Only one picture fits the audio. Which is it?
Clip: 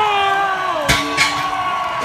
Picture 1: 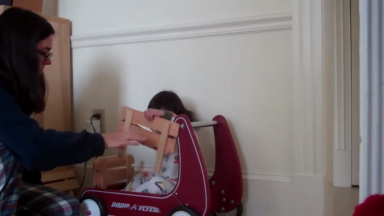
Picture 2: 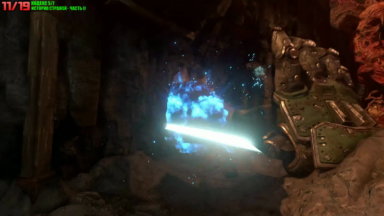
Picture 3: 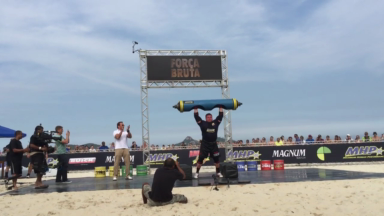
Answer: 3